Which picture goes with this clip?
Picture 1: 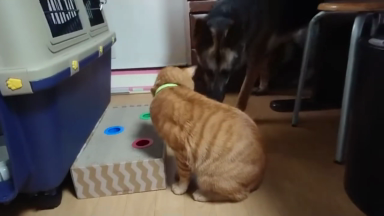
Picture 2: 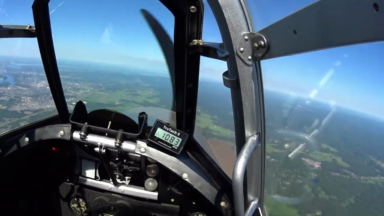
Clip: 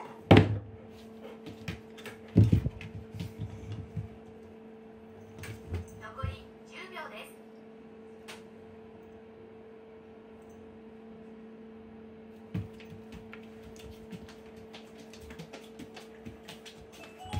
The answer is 1